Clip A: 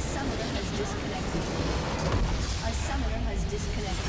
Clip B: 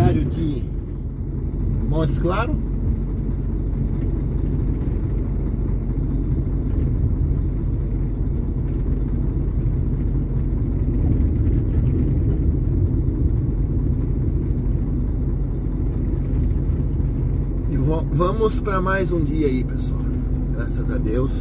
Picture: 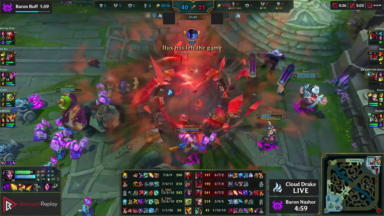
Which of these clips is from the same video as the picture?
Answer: A